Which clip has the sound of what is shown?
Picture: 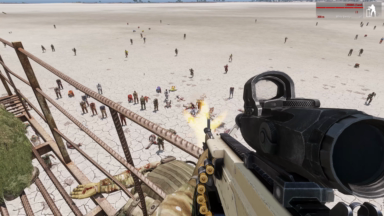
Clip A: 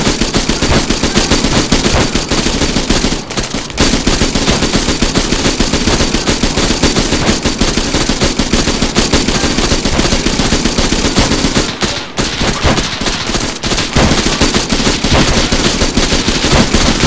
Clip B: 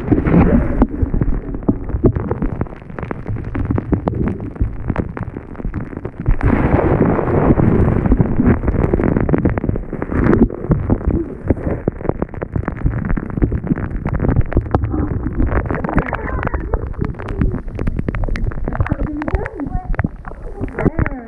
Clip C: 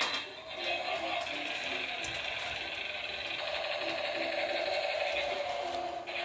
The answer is A